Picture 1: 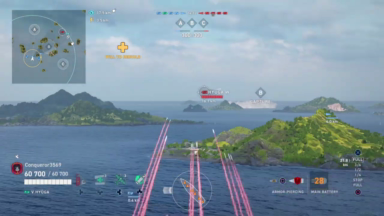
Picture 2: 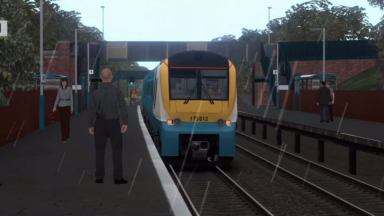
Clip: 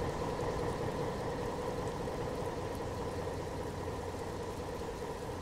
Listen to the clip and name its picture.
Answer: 2